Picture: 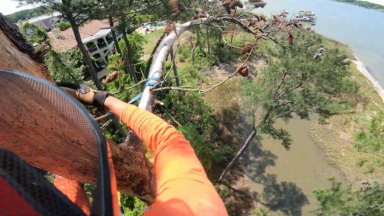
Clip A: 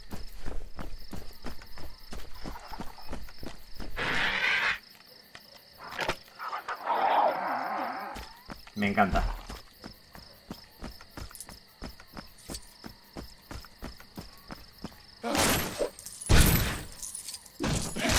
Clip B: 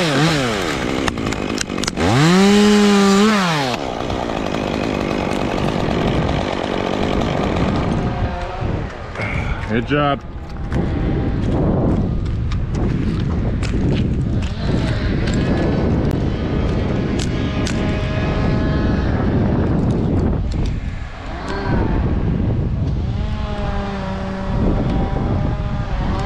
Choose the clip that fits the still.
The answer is B